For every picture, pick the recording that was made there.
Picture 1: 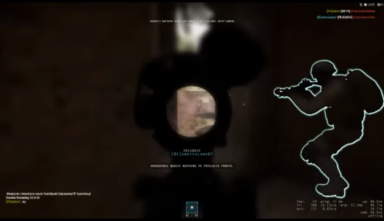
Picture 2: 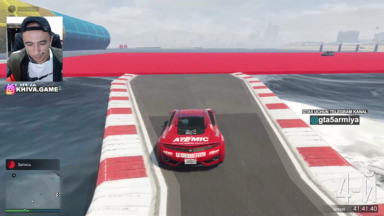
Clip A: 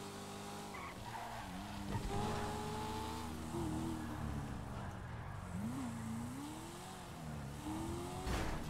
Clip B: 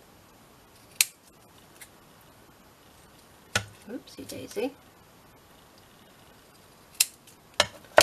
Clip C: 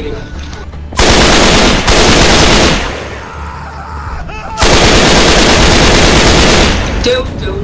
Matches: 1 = C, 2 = A